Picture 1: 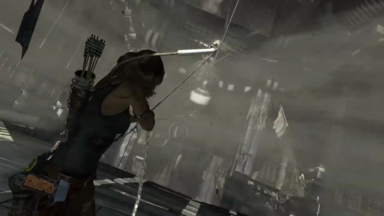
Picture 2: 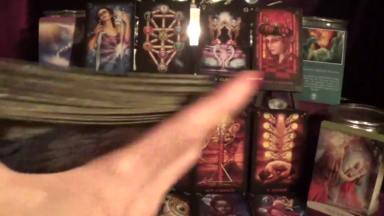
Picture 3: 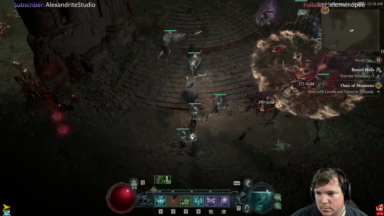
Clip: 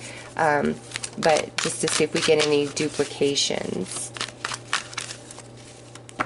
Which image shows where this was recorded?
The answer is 2